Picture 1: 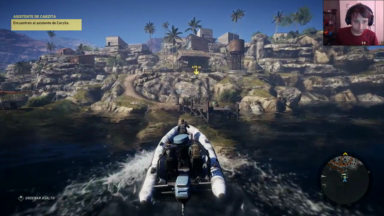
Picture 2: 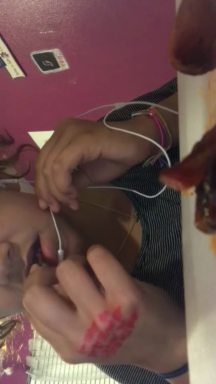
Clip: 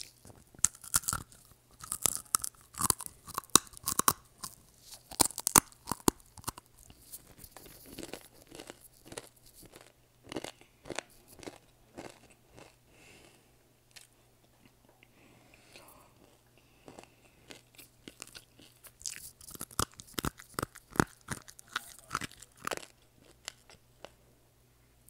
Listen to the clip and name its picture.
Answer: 2